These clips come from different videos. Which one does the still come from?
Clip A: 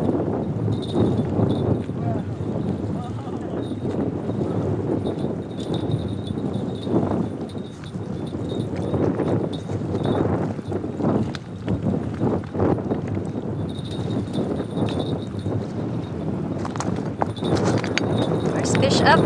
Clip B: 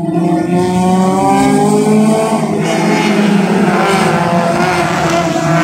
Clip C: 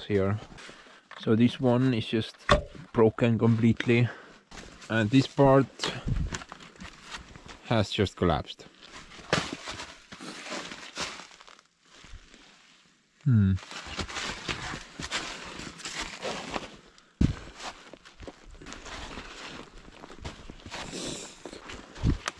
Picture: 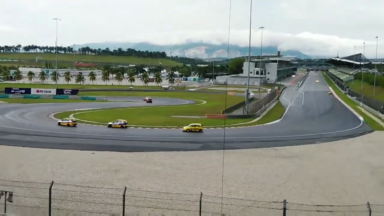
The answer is B